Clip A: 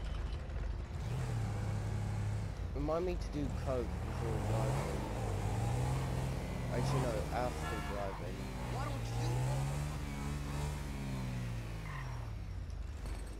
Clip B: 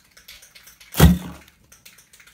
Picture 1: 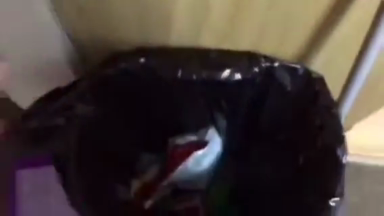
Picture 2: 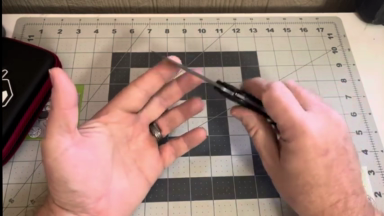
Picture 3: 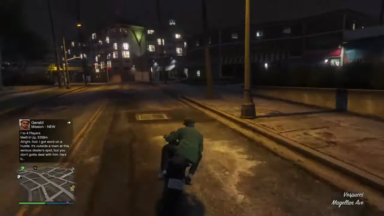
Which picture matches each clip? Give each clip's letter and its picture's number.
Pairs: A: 3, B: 1